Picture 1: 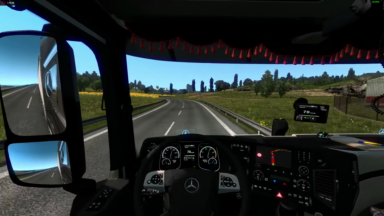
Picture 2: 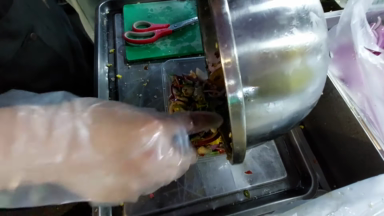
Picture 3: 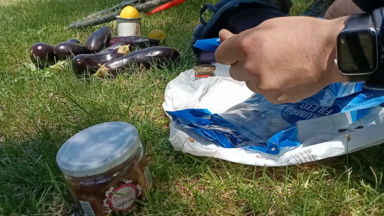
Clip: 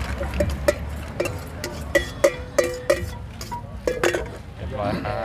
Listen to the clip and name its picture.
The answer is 2